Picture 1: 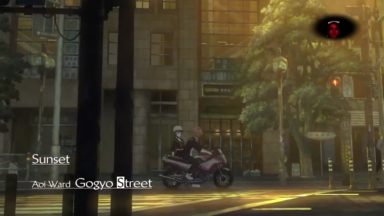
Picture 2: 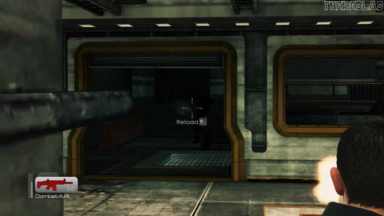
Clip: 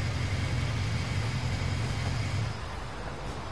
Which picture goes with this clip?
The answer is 1